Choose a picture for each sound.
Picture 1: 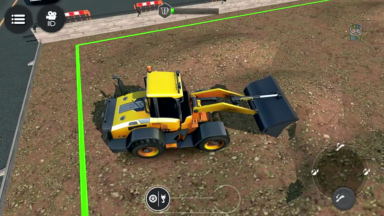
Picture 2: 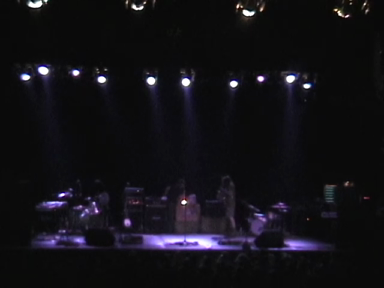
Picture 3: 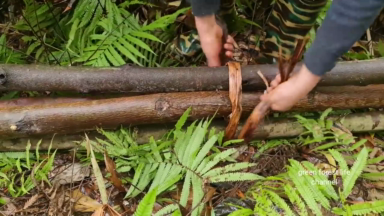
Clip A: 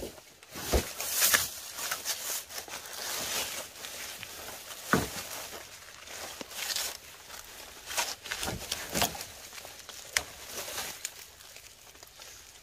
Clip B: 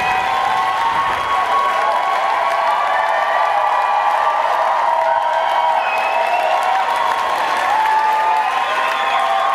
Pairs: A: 3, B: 2